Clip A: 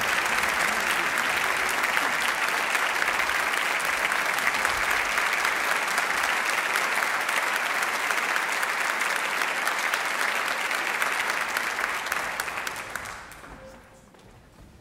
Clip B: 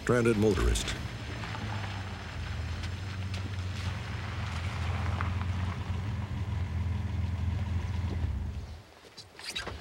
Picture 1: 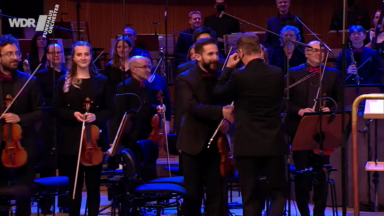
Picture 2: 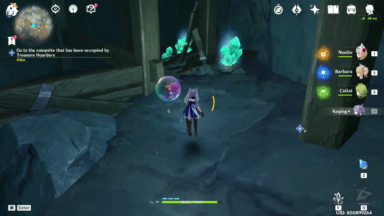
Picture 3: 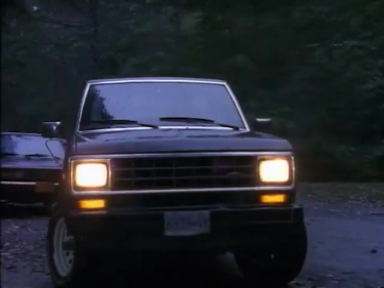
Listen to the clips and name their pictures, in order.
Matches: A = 1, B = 3